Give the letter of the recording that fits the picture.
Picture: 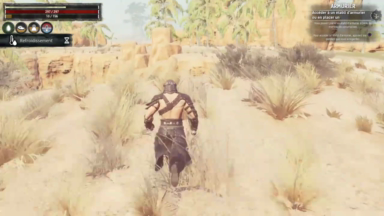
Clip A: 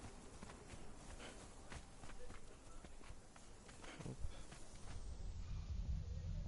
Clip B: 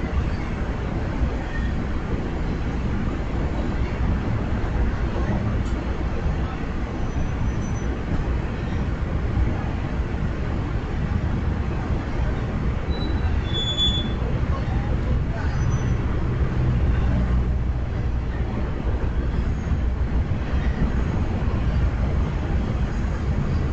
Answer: A